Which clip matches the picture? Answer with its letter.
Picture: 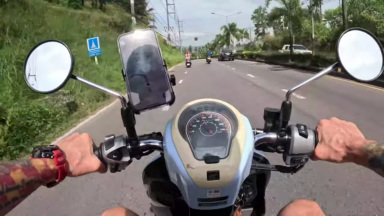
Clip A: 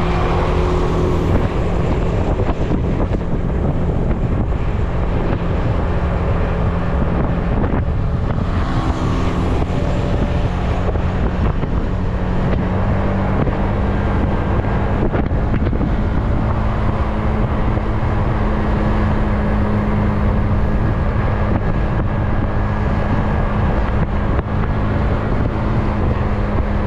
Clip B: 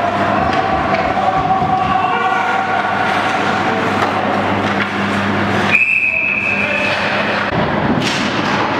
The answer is A